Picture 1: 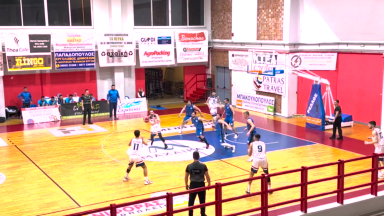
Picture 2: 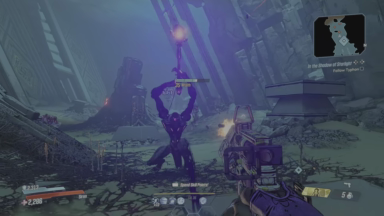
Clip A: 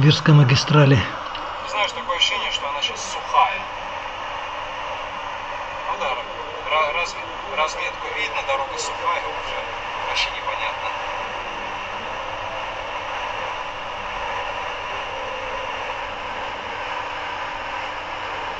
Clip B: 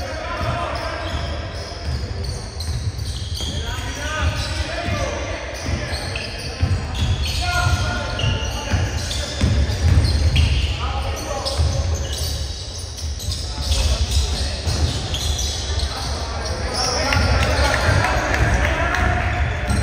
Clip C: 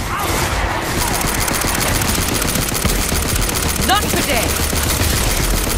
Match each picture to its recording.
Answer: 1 B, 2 C